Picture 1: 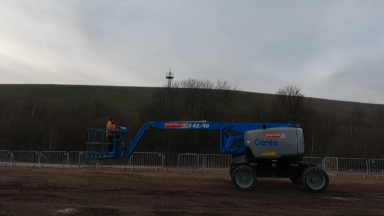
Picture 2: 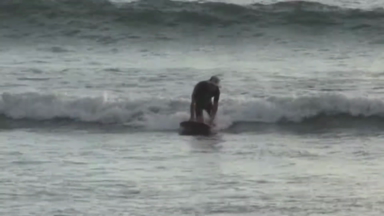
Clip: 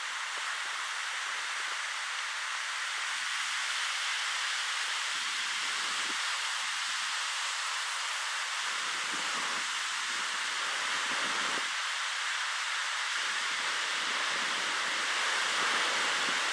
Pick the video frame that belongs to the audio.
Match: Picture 2